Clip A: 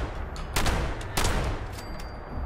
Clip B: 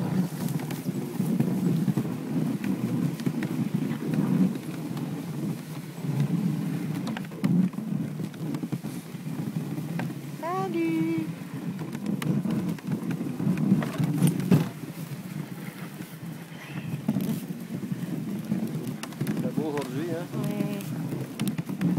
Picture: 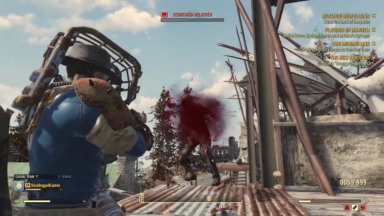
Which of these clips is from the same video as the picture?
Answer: A